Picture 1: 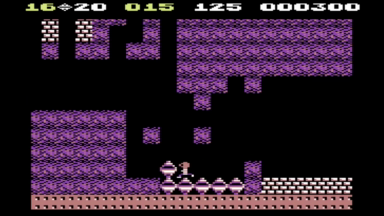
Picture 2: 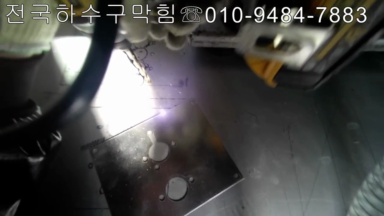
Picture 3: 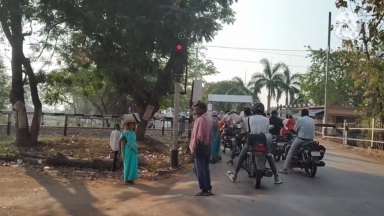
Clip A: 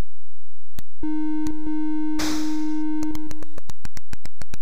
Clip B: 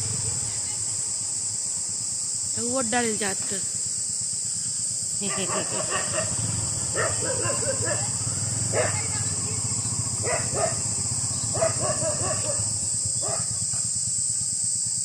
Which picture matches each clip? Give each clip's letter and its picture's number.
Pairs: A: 1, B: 3